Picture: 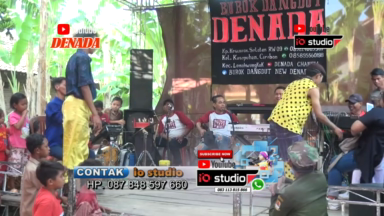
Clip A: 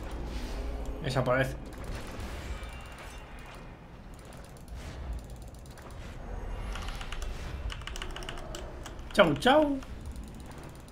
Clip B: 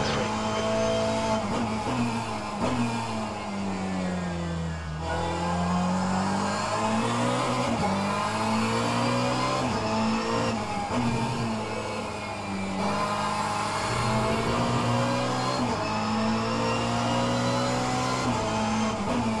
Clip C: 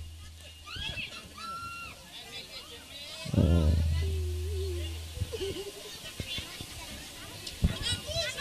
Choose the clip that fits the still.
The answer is C